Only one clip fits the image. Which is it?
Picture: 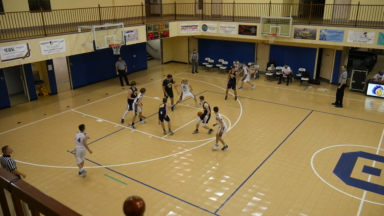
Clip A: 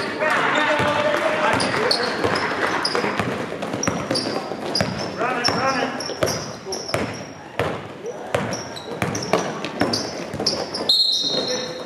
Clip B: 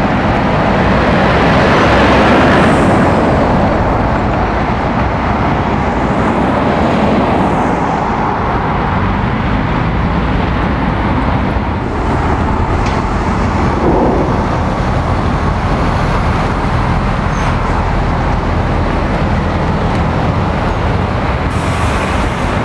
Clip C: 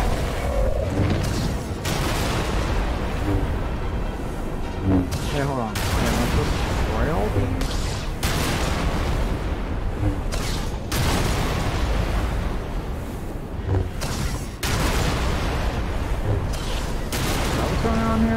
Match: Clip A